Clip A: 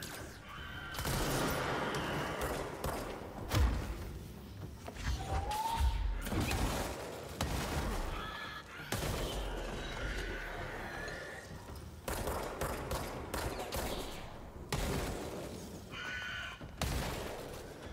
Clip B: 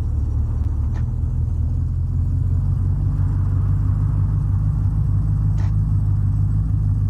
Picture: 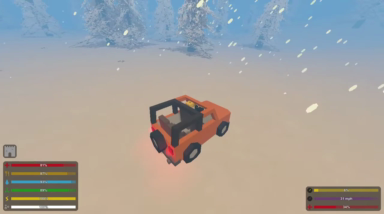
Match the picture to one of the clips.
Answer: B